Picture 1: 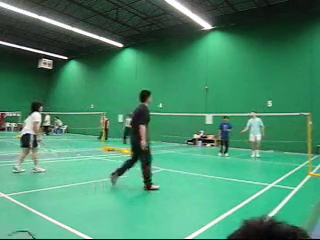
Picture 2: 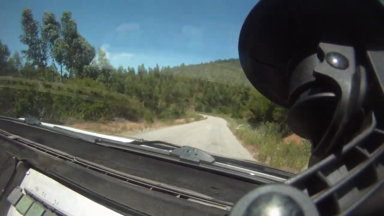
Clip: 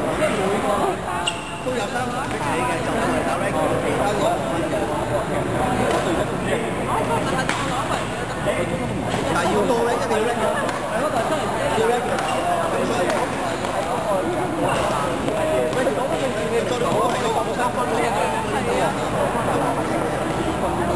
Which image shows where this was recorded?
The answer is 1